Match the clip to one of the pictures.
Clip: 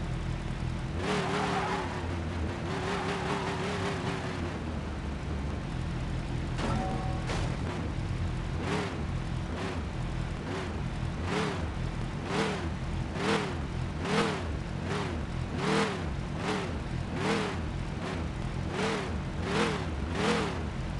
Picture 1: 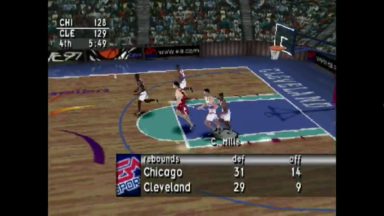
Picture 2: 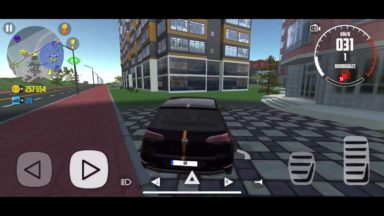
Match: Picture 2